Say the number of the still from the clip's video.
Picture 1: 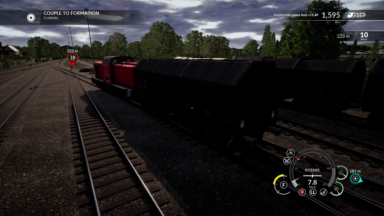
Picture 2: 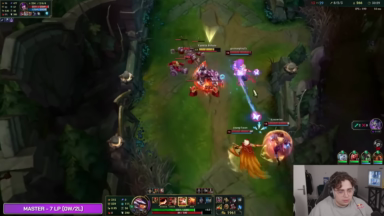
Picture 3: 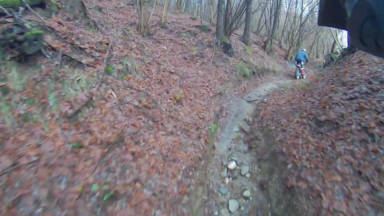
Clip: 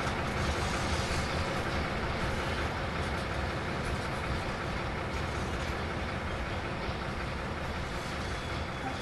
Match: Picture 1